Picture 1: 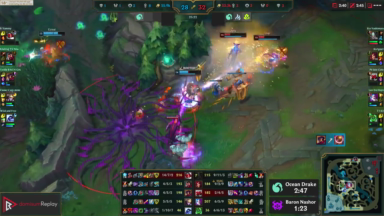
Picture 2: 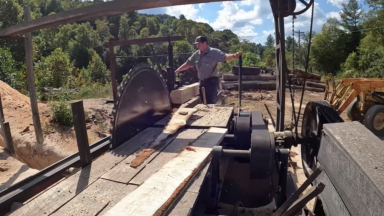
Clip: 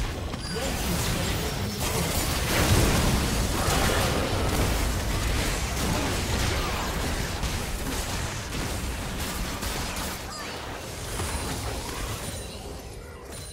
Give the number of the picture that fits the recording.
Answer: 1